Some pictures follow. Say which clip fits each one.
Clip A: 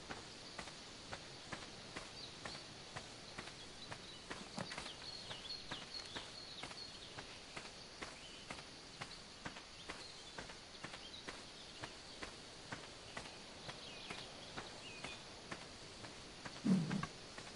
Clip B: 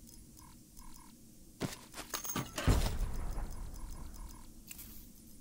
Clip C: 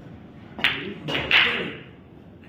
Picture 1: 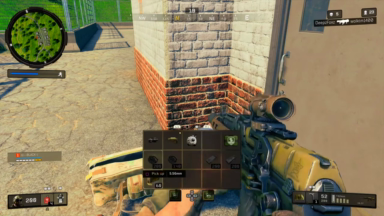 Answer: B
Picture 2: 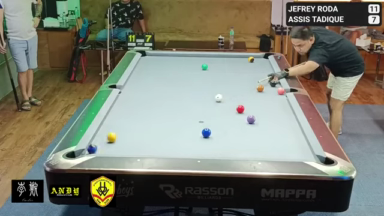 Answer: C